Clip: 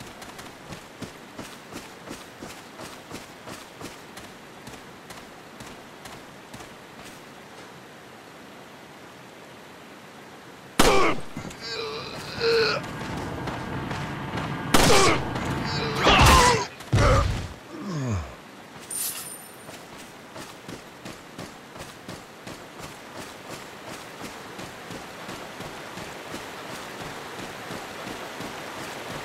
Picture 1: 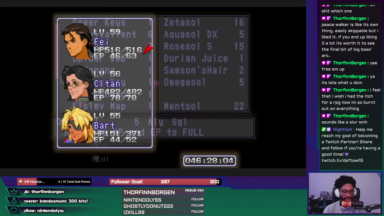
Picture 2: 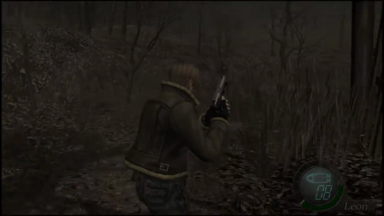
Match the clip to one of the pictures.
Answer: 2